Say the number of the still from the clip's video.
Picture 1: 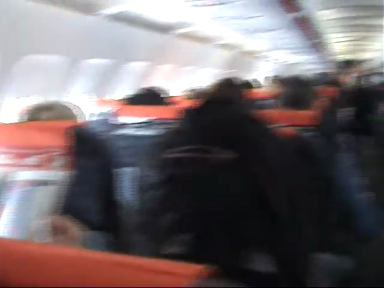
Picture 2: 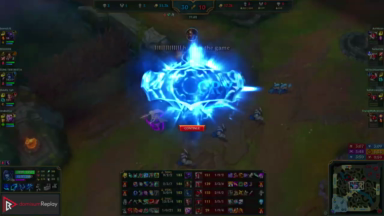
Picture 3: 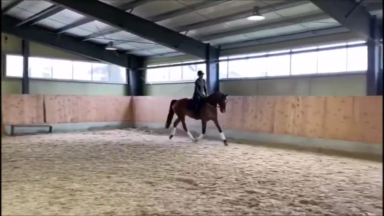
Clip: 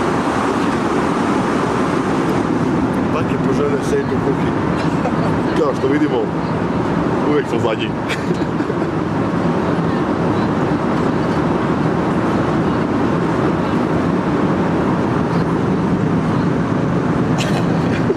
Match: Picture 1